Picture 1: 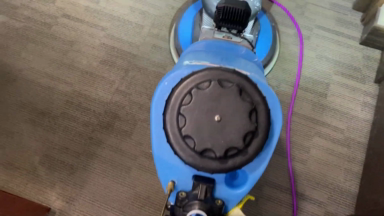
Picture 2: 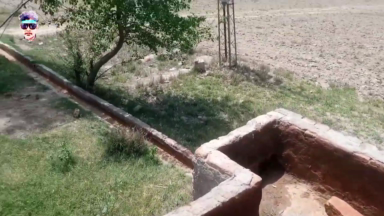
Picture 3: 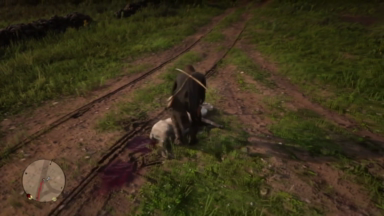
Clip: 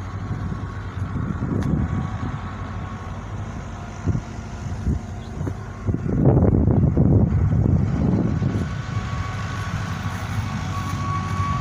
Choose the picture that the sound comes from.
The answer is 2